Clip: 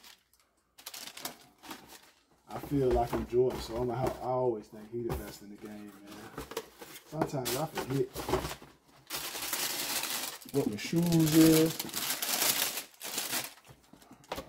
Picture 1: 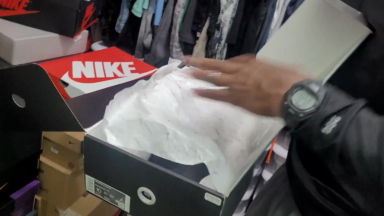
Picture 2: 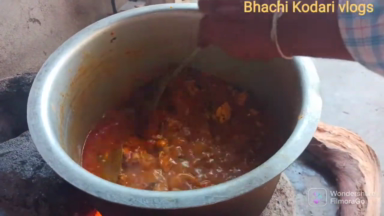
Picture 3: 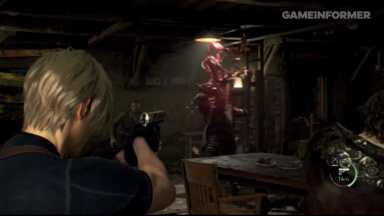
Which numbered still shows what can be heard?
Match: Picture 1